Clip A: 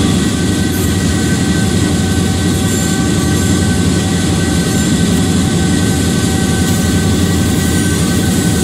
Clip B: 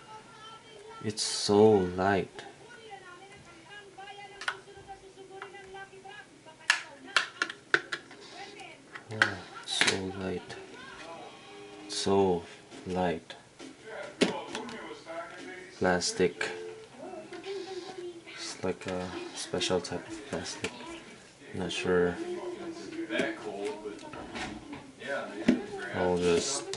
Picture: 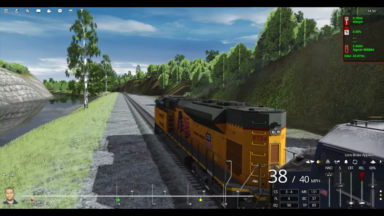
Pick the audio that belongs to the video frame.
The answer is A